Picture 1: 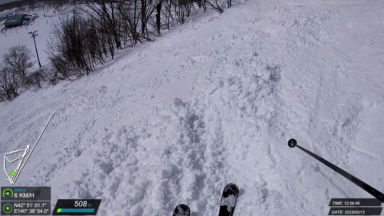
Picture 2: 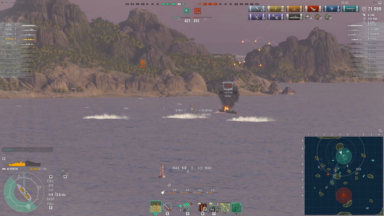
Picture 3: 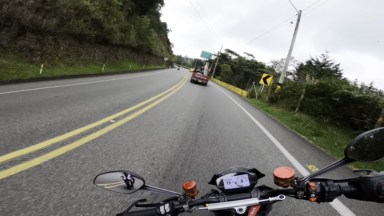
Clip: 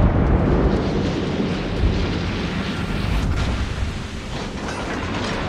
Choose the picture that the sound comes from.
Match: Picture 2